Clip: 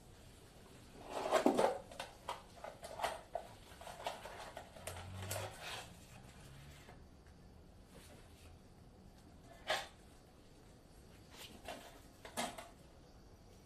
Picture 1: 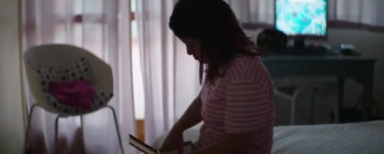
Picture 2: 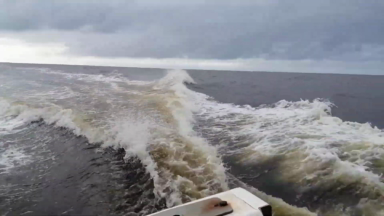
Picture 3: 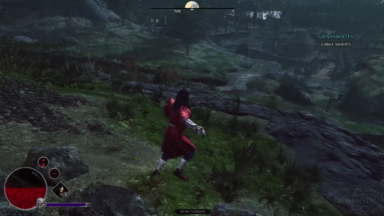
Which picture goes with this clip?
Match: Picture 1